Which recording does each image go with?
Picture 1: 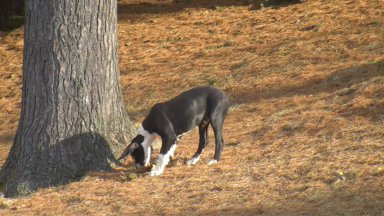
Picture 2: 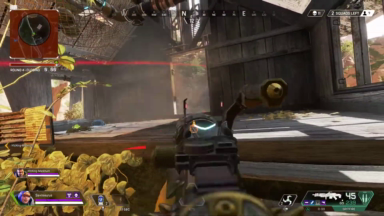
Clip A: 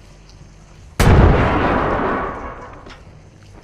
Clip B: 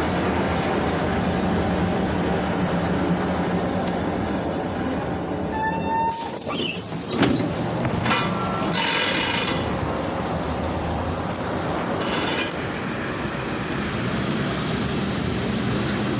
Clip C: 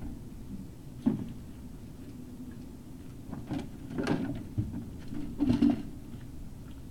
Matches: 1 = C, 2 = A